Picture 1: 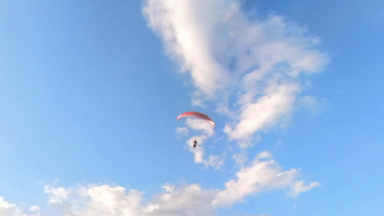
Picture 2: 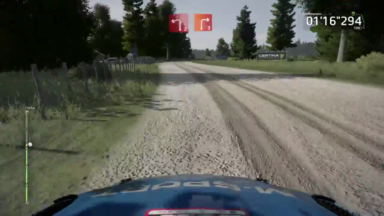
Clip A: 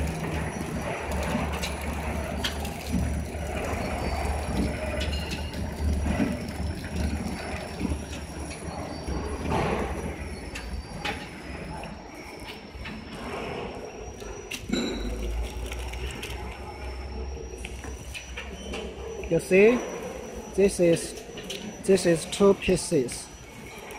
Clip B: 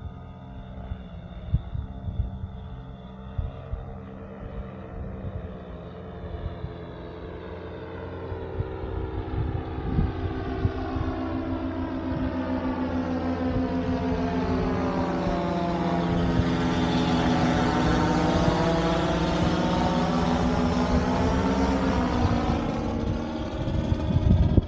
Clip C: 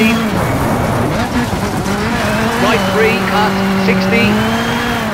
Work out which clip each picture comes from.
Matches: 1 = B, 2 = C